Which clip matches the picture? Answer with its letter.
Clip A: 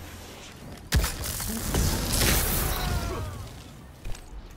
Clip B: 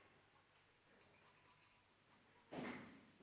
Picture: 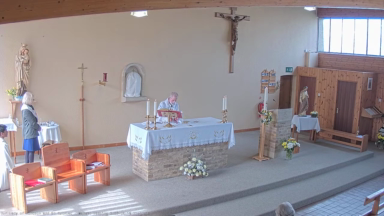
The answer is B